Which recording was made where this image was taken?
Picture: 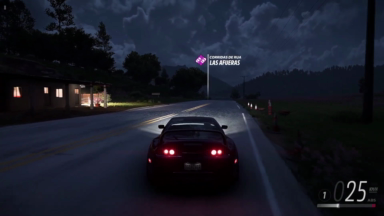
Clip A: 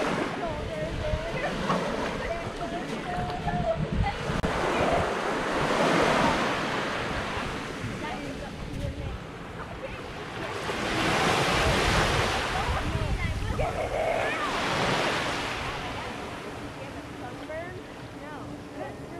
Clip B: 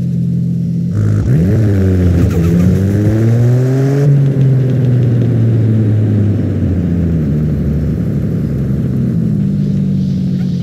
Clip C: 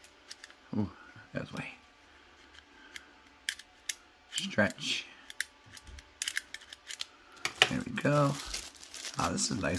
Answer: B